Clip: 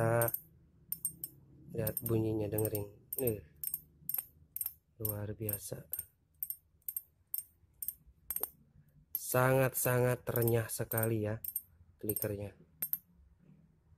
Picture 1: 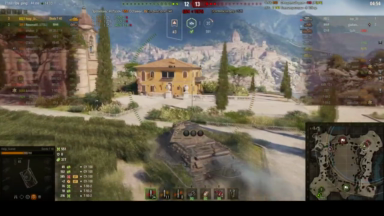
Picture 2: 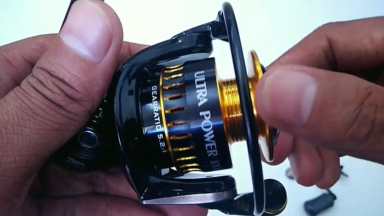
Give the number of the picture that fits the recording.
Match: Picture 2